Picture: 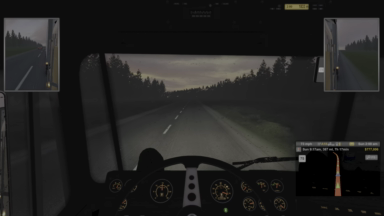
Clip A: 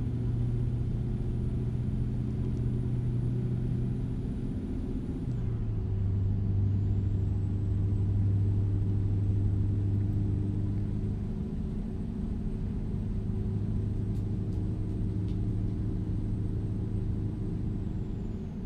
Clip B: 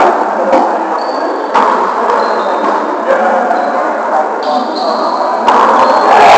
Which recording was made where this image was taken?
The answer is A